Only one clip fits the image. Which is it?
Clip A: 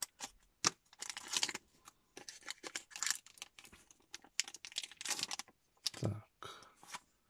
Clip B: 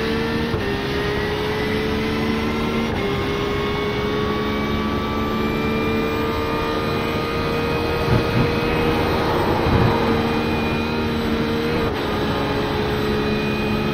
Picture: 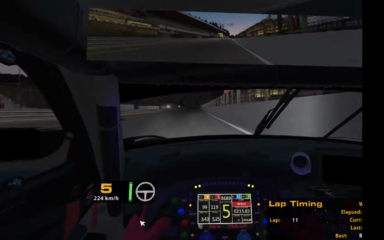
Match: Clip B